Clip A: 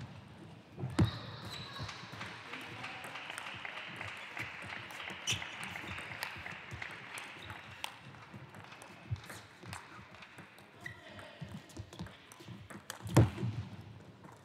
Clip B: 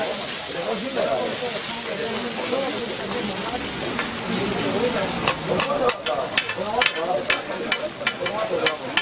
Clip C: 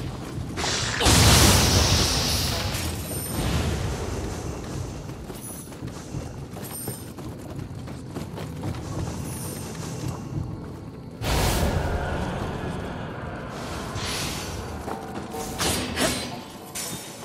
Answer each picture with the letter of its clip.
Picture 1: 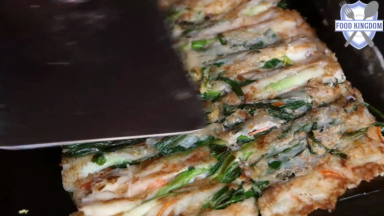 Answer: B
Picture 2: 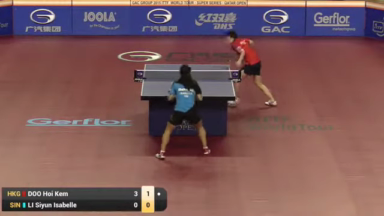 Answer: A